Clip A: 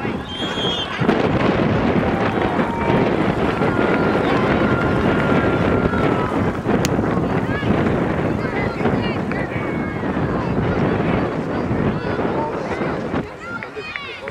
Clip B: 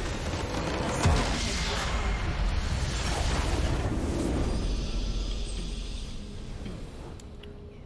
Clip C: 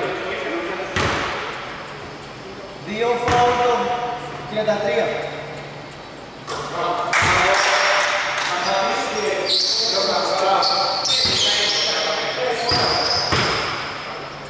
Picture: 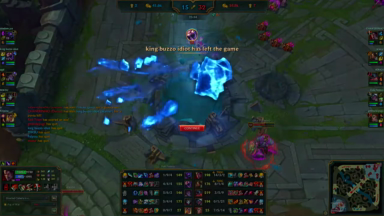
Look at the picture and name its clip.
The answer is B